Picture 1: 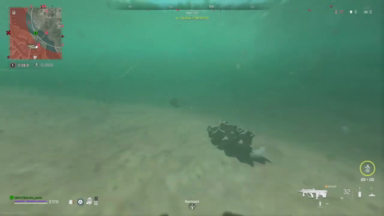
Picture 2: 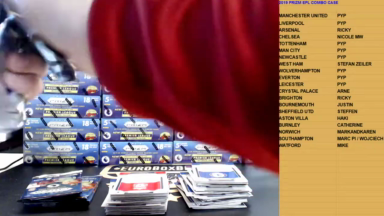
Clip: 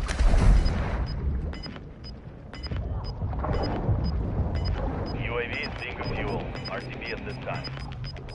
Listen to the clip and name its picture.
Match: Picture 1